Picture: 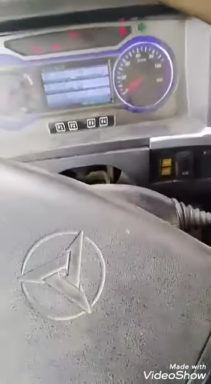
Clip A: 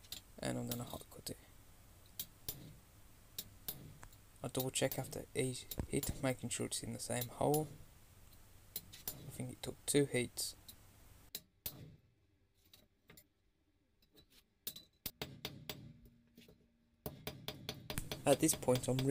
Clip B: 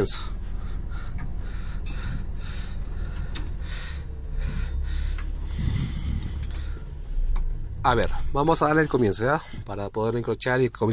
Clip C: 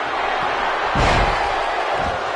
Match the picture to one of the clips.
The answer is B